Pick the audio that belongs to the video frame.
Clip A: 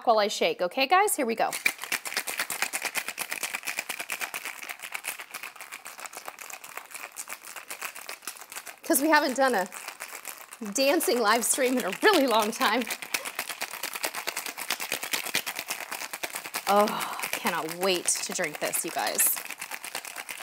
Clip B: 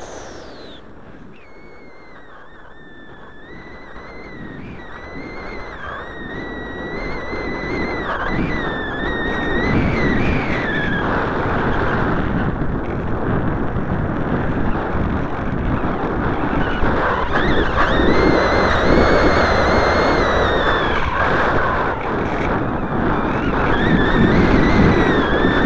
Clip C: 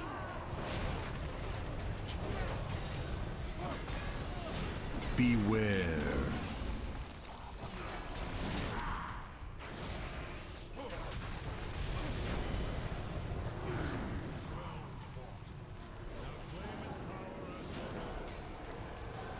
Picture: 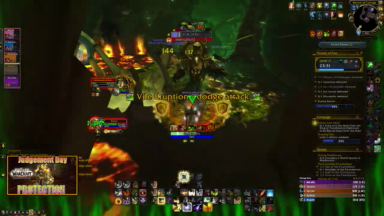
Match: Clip C